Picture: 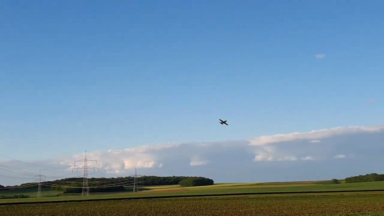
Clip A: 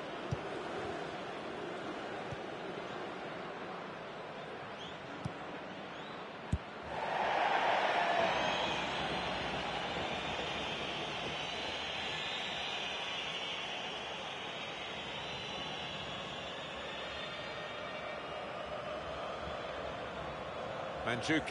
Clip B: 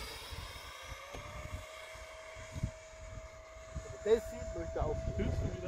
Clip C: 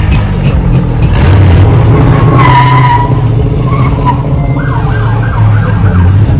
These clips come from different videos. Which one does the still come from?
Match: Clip B